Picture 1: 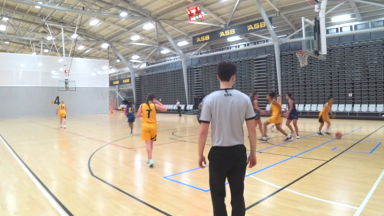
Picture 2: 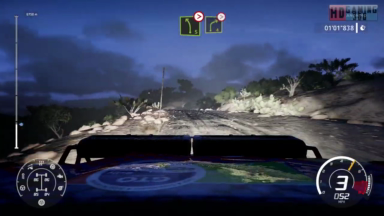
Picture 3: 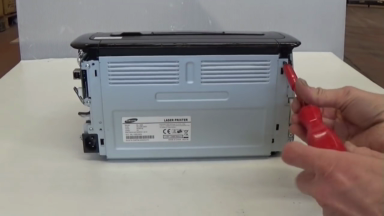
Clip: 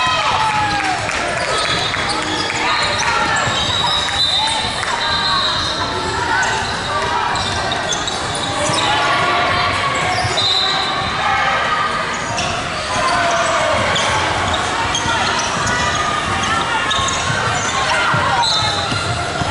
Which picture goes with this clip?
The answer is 1